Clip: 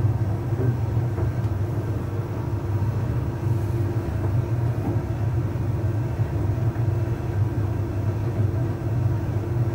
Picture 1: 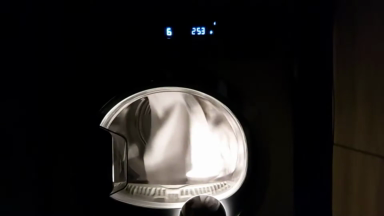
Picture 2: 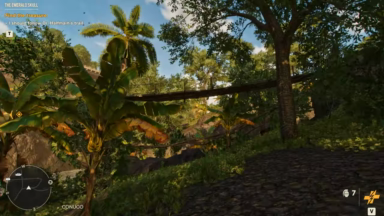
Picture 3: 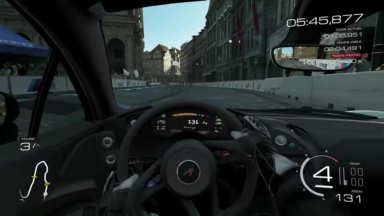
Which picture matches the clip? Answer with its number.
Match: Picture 1